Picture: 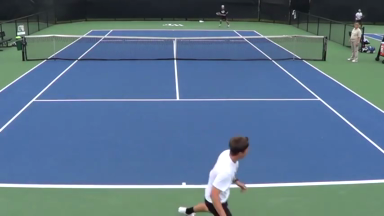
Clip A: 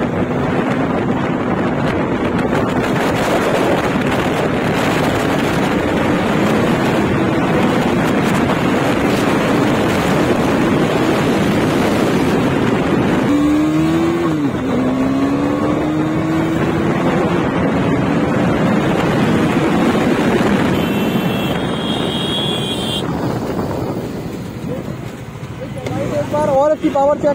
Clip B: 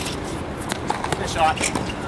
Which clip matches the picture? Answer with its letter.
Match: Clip B